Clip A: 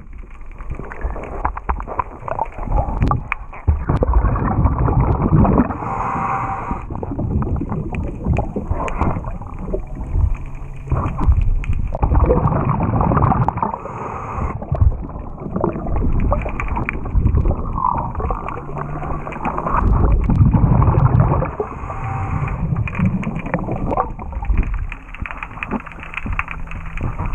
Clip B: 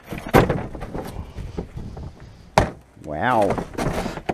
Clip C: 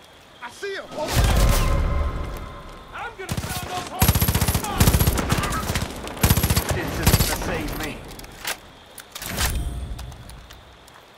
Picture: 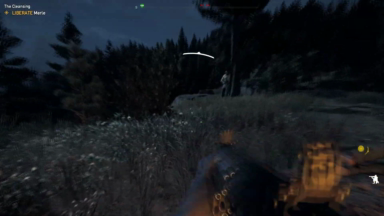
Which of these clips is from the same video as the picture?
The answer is C